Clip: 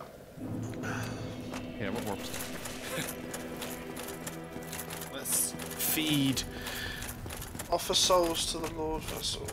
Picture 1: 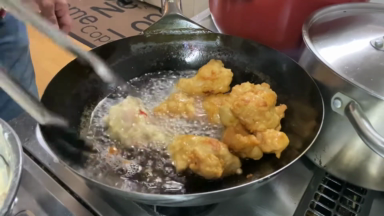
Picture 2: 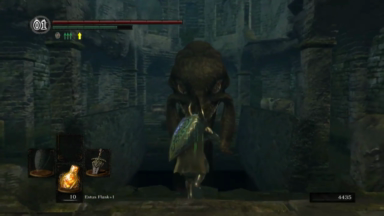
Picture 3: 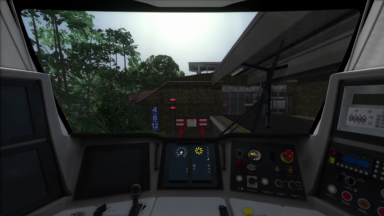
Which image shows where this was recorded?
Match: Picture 2